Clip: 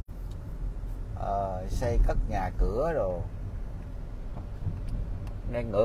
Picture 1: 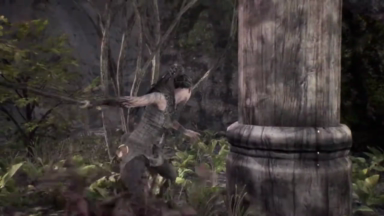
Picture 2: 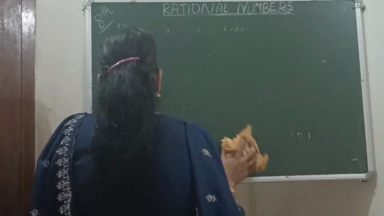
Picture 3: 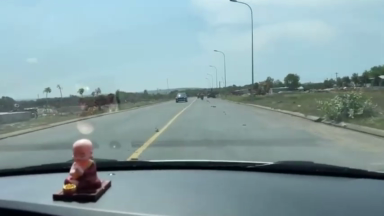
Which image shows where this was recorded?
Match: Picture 3